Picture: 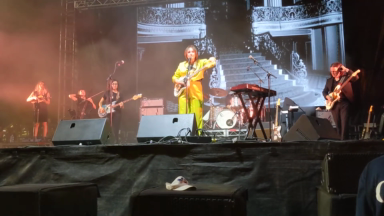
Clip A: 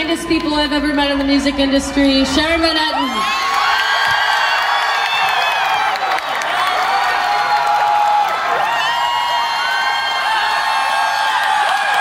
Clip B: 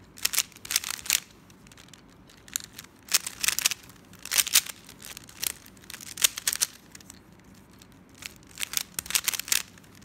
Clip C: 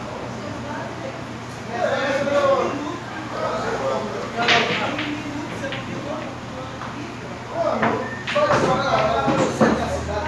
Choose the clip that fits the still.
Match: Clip A